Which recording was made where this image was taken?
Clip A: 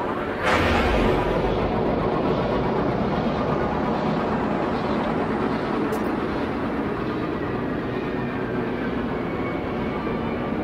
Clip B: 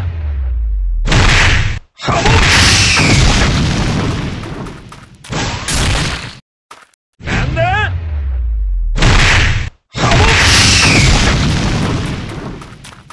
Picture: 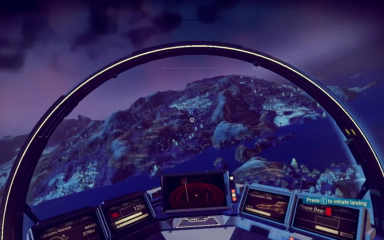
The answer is A